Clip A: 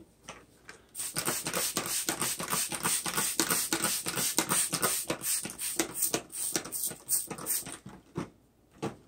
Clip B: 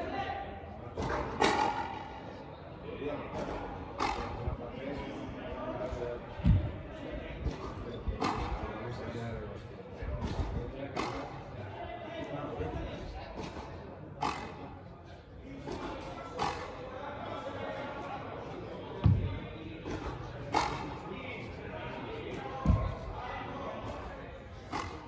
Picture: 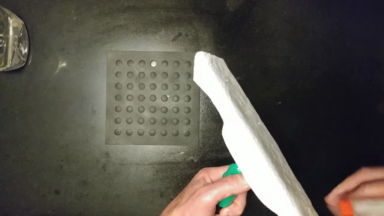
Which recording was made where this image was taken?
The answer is A